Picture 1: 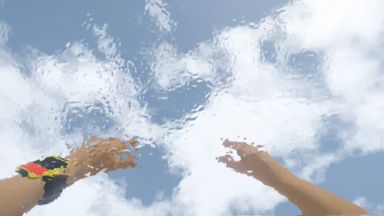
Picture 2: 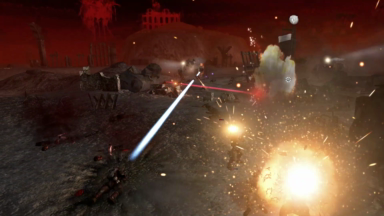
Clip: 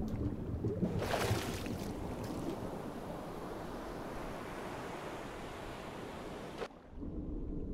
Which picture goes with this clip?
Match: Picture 1